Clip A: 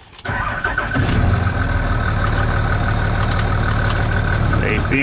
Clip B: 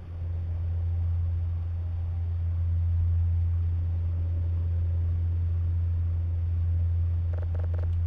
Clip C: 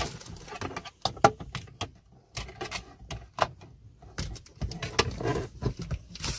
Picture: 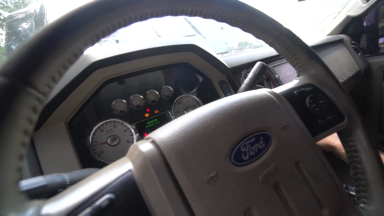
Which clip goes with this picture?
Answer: A